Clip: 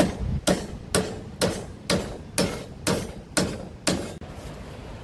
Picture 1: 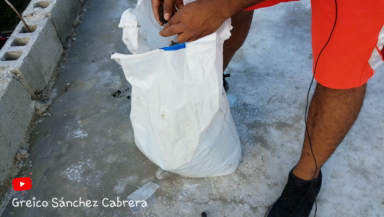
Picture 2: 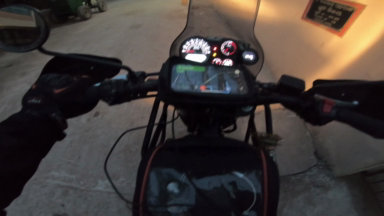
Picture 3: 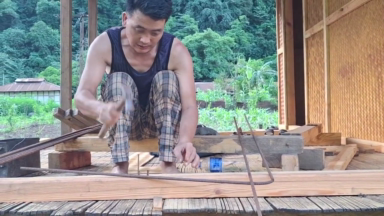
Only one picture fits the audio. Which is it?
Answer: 3